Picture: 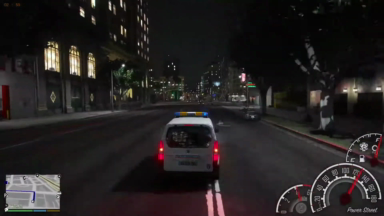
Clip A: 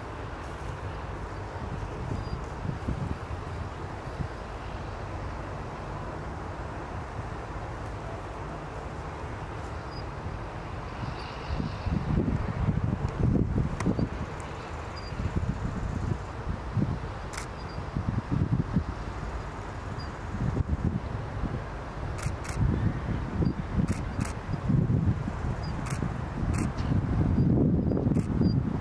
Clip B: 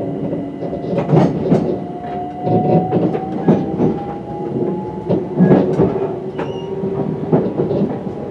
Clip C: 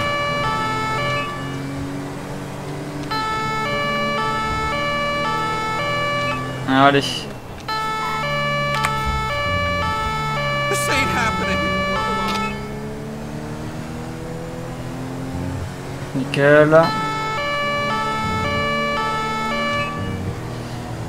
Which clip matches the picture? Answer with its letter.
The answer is C